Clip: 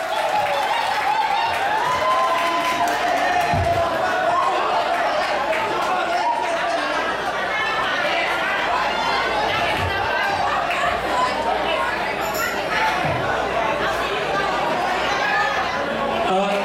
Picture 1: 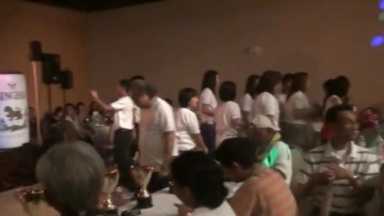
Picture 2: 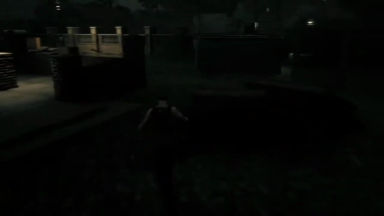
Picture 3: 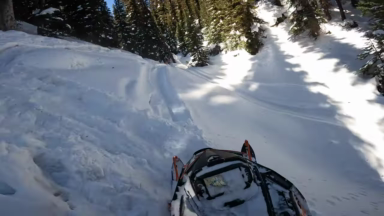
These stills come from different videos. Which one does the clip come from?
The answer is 1